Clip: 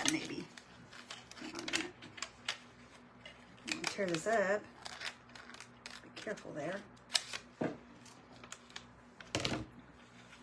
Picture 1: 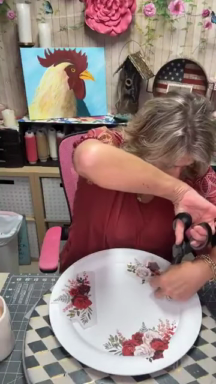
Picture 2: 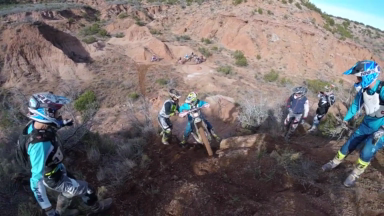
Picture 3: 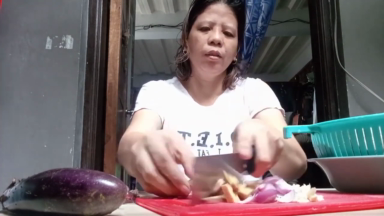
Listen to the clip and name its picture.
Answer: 1